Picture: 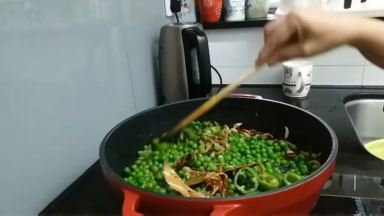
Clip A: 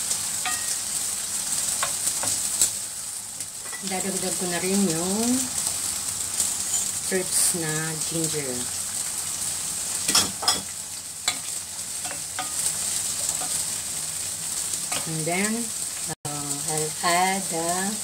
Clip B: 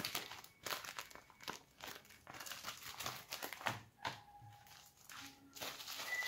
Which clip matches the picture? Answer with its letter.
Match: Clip A